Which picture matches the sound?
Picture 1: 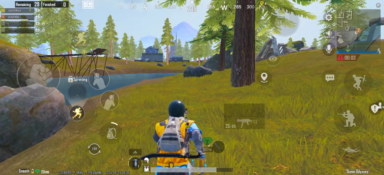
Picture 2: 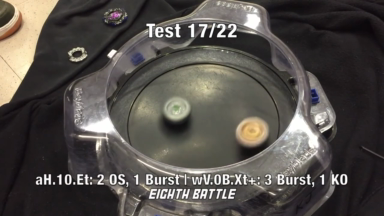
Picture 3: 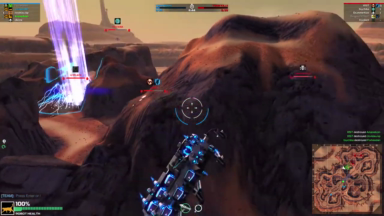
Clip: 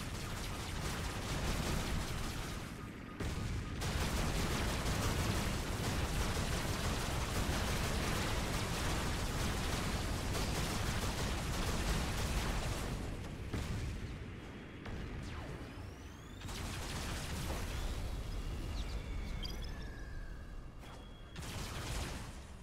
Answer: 3